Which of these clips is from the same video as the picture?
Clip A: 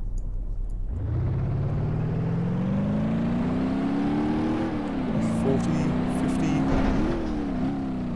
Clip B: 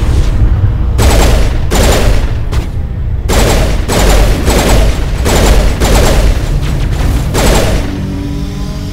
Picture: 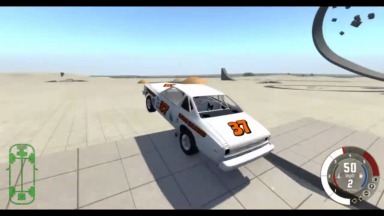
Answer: A